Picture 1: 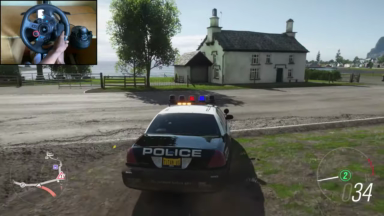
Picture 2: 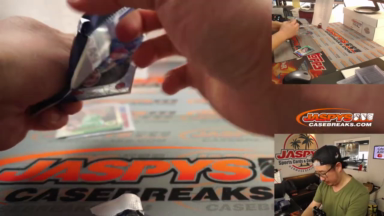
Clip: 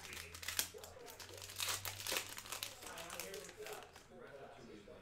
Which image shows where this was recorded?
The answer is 2